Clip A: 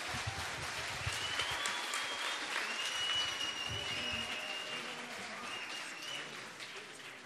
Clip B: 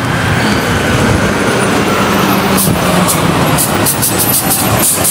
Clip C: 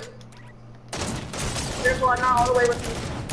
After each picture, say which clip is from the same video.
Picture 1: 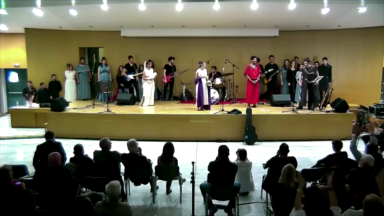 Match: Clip A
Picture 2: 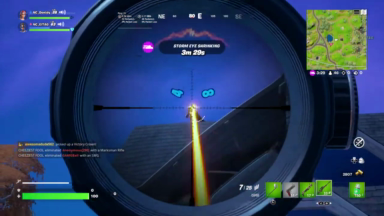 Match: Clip C